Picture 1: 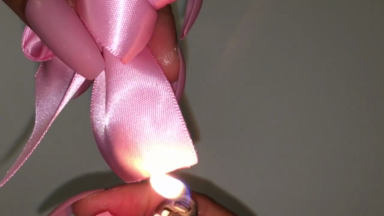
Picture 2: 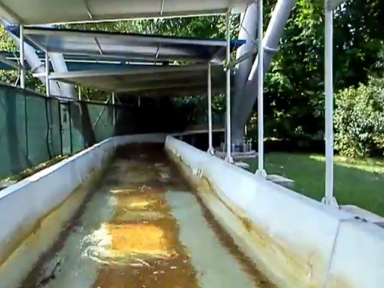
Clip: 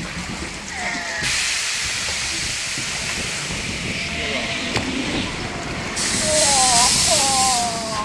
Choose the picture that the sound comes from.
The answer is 2